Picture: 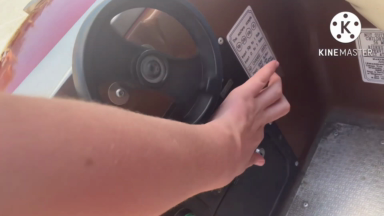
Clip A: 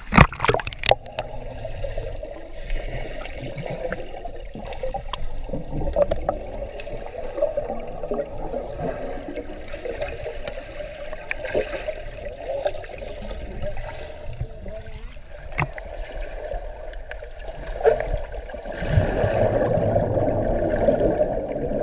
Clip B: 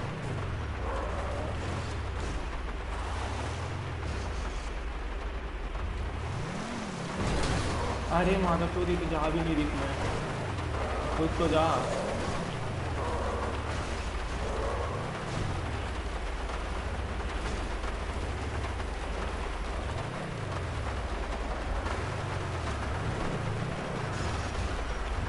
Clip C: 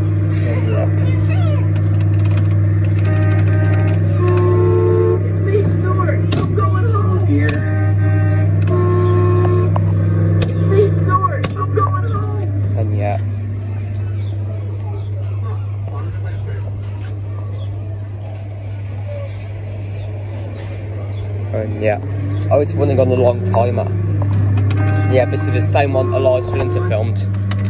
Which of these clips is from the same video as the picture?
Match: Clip C